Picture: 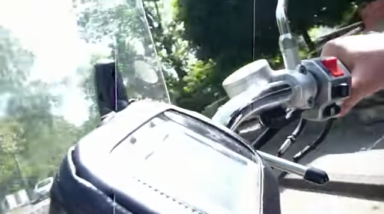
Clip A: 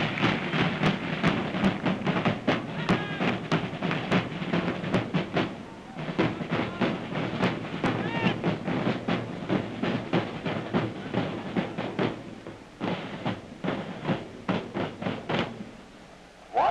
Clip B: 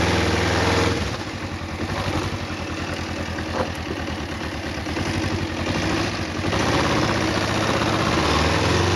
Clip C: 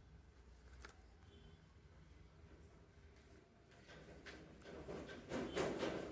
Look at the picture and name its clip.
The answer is B